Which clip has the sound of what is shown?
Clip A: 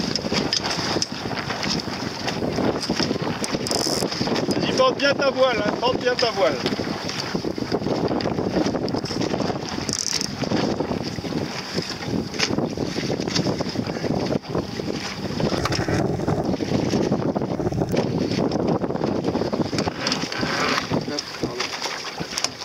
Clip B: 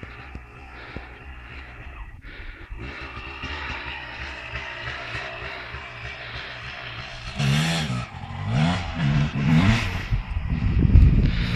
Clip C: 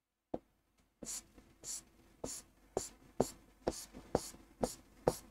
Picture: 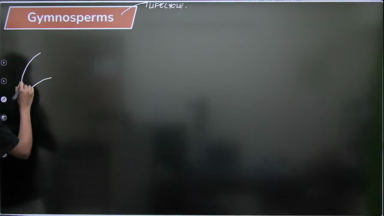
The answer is C